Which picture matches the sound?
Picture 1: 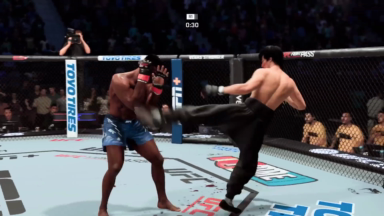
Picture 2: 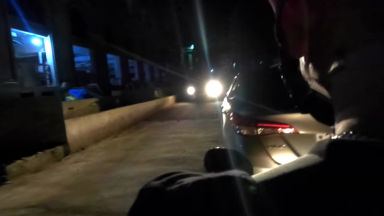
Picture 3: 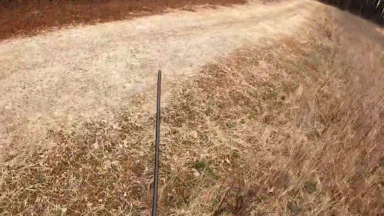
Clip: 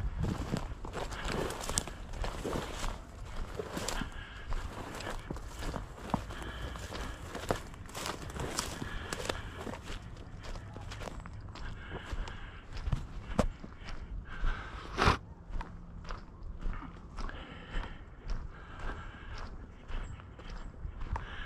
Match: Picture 3